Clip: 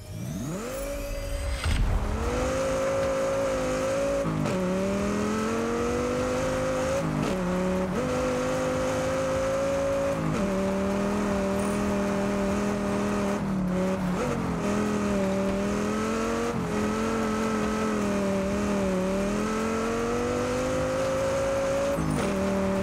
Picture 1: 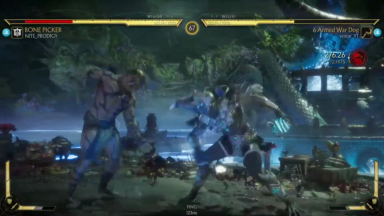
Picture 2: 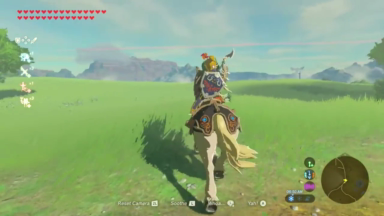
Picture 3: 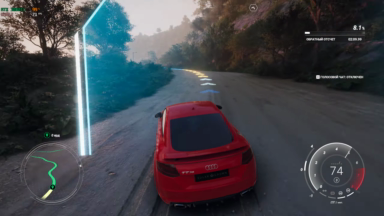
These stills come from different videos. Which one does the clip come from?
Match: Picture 3